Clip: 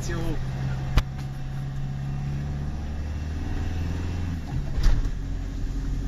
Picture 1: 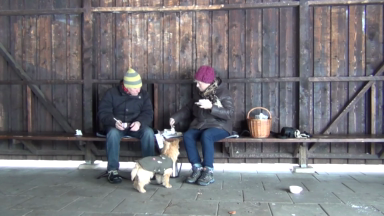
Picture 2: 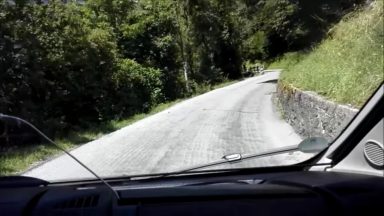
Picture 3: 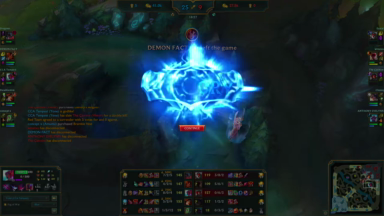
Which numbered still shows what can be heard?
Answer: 2